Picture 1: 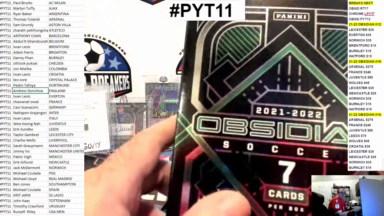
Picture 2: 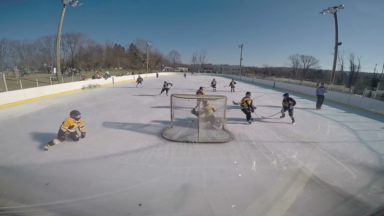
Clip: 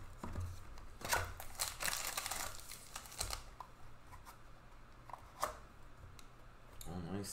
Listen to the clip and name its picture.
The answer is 1